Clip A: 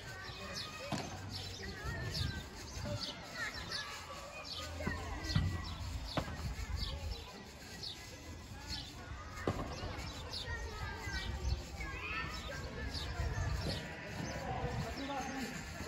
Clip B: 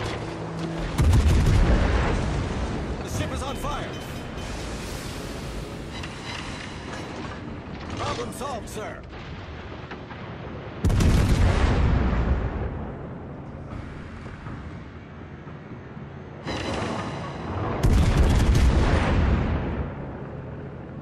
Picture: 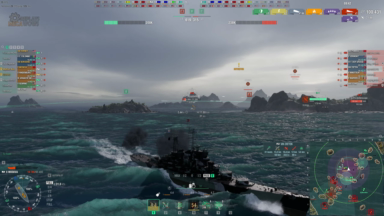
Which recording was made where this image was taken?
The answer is B